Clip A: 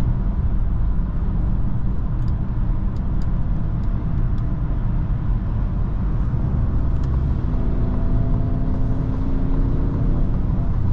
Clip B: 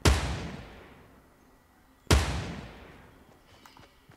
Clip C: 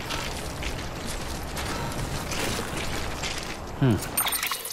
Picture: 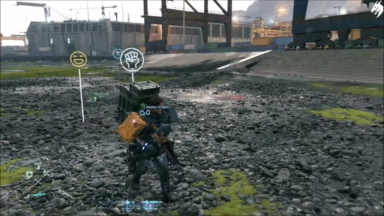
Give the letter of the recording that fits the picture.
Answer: C